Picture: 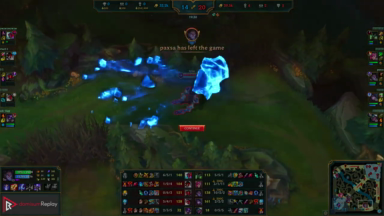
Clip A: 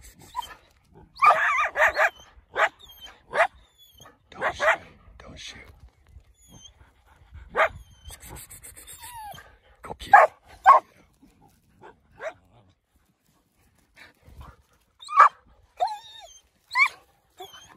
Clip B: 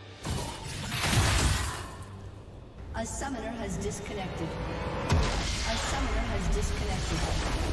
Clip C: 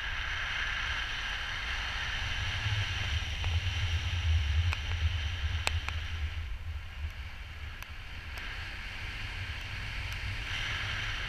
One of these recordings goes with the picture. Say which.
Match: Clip B